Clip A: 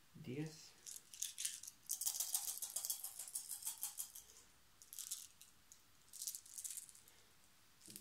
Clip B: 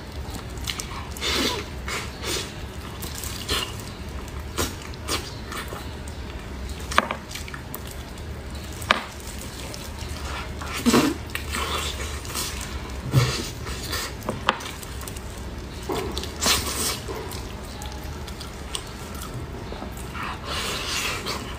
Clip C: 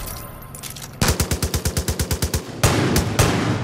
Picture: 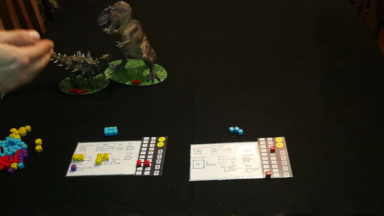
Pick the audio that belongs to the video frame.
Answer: A